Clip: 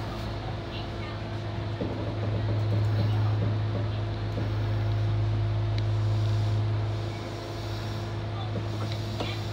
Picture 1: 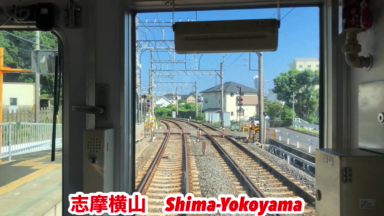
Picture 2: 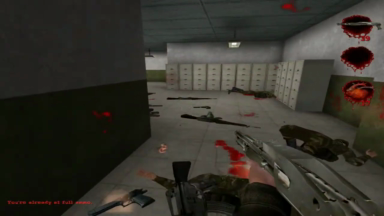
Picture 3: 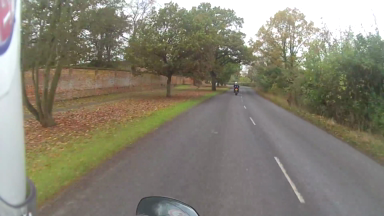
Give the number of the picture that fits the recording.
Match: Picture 1